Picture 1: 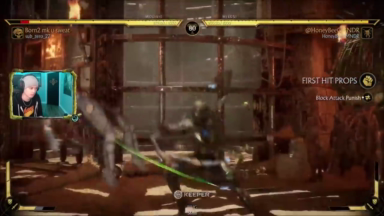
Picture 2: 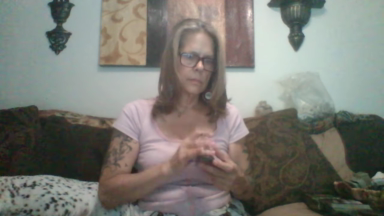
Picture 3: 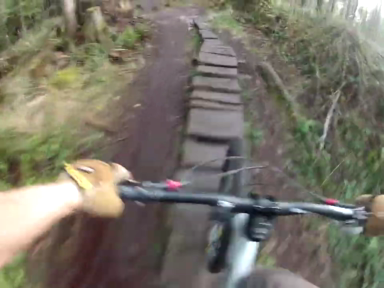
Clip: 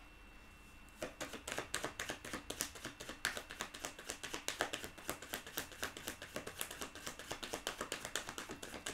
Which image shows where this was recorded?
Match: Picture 2